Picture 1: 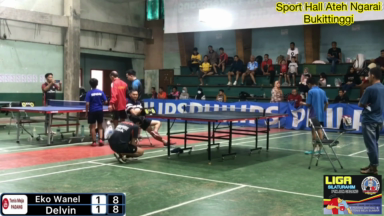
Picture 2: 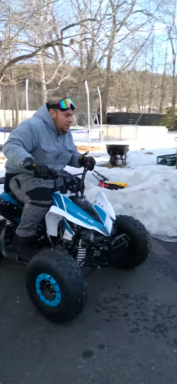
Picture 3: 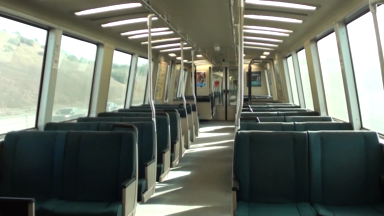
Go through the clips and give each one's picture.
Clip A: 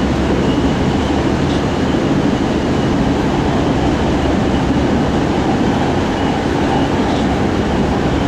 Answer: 3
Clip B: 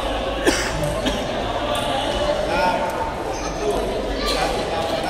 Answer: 1